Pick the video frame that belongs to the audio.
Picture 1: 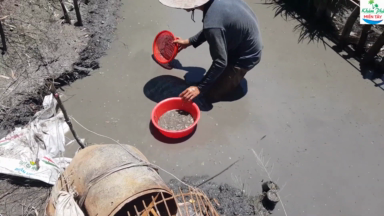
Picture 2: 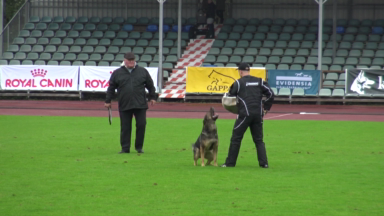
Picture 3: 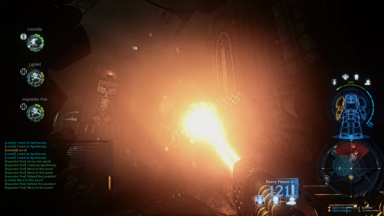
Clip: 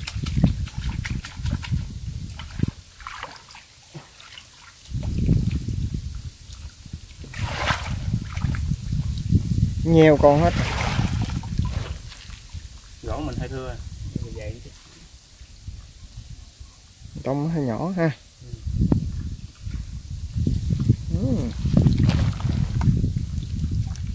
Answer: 1